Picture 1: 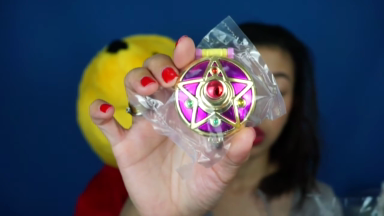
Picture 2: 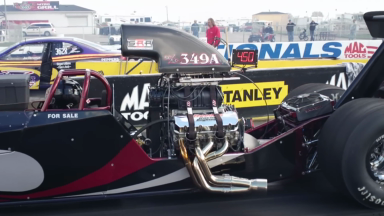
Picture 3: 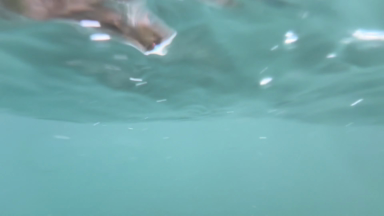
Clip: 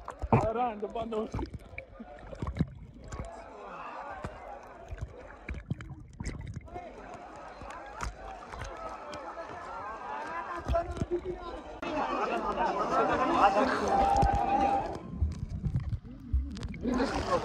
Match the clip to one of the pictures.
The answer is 3